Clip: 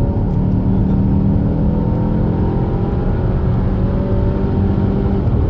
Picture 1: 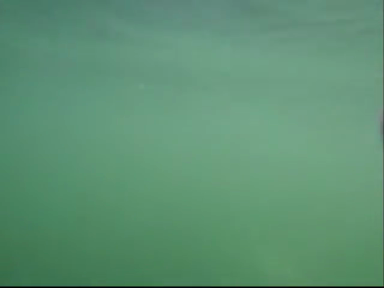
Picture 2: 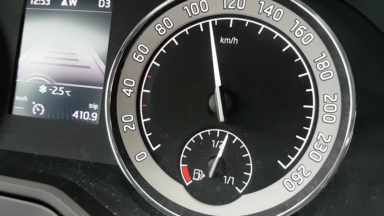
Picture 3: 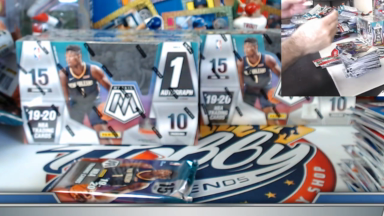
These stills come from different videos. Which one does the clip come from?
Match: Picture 2